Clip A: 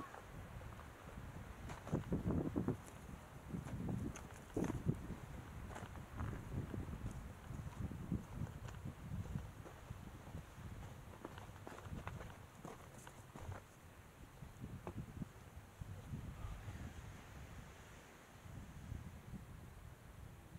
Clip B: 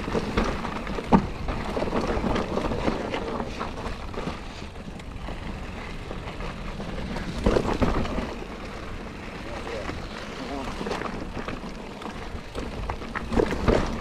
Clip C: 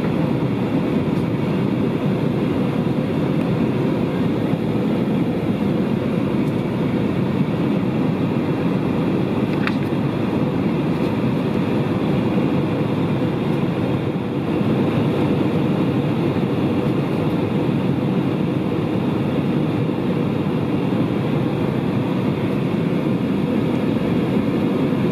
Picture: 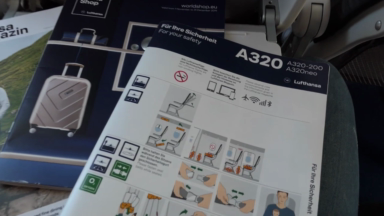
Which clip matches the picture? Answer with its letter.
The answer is C